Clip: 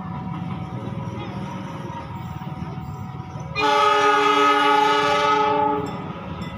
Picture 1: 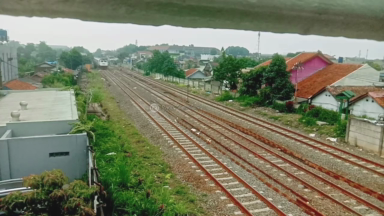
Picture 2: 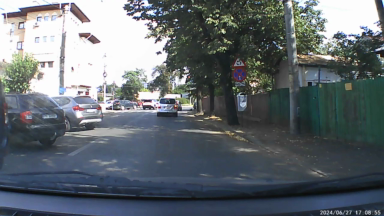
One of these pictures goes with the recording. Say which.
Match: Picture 1